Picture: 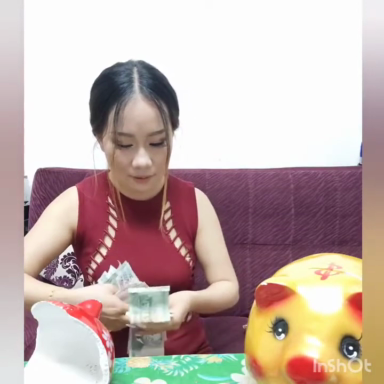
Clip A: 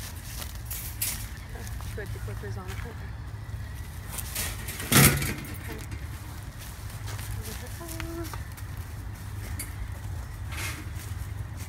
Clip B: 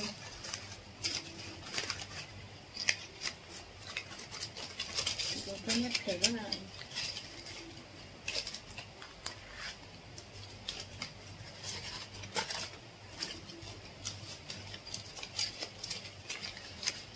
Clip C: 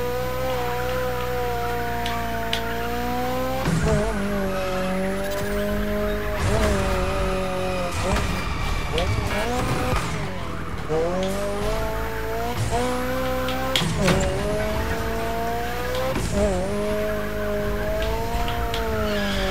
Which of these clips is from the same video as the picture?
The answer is B